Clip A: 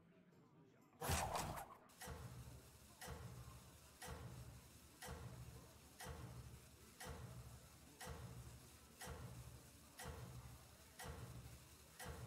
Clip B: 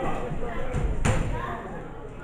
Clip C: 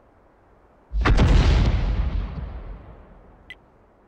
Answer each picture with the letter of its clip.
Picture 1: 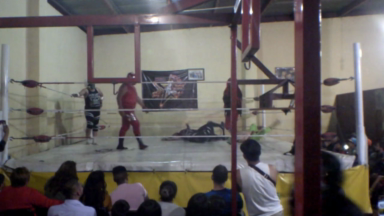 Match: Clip B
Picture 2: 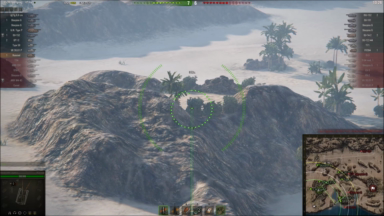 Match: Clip C